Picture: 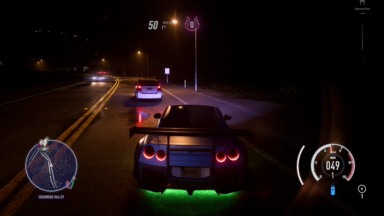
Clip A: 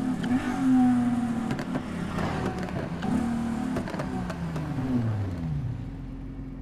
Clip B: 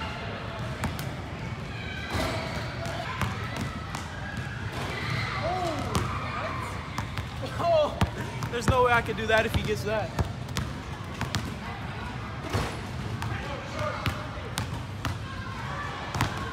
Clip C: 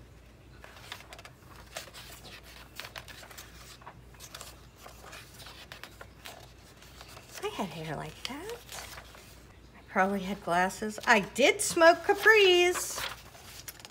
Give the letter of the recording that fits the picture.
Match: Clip A